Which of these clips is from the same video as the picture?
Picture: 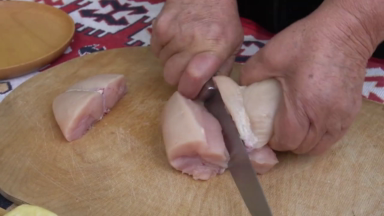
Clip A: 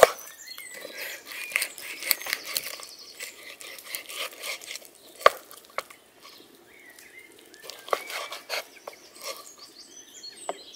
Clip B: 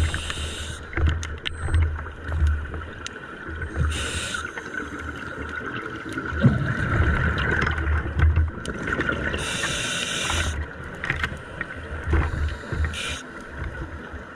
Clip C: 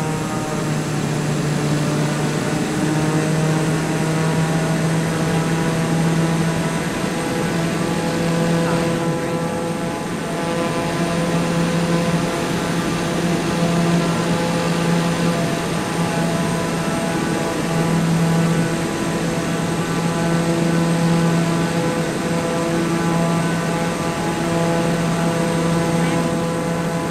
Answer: A